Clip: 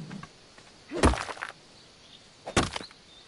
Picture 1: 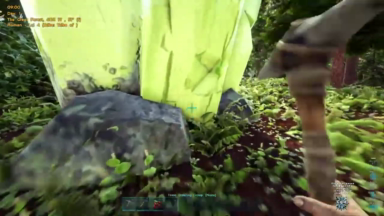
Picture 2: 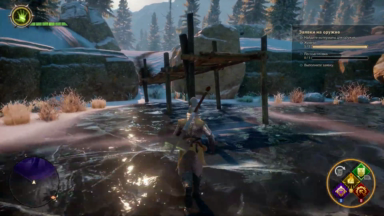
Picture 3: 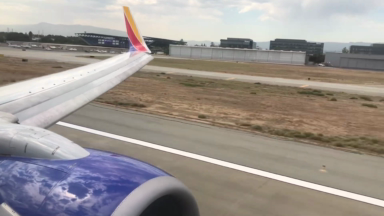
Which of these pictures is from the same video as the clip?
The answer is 1